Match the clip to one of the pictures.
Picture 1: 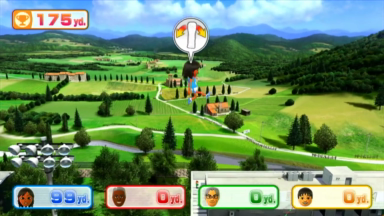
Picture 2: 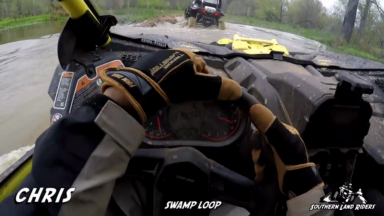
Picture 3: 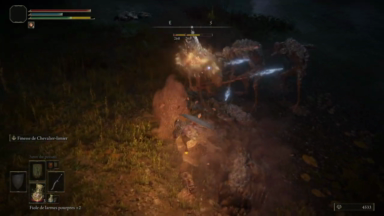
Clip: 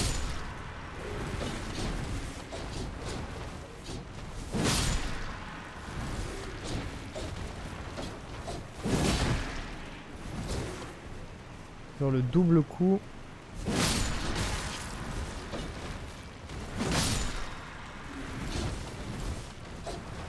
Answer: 3